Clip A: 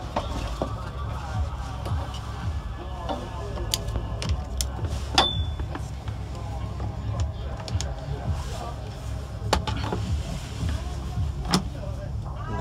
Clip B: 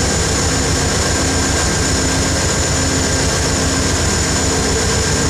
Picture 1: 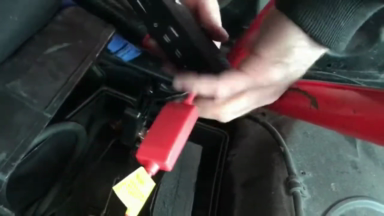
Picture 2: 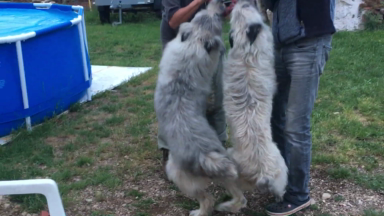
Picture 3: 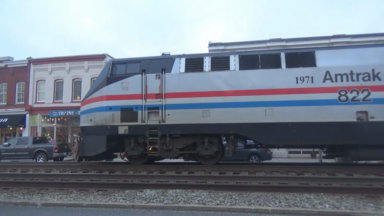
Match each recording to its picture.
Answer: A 1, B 3